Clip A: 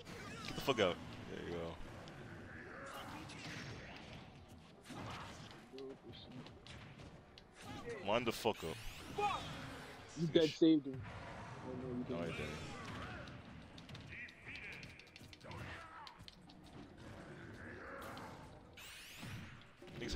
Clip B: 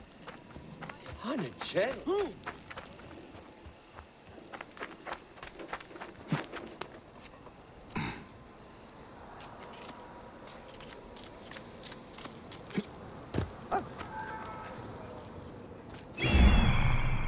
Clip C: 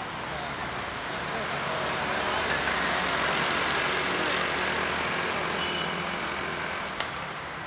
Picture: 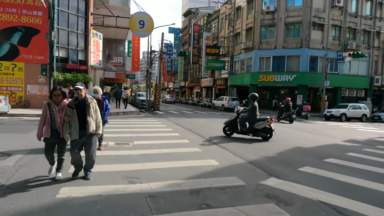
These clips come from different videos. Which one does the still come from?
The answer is C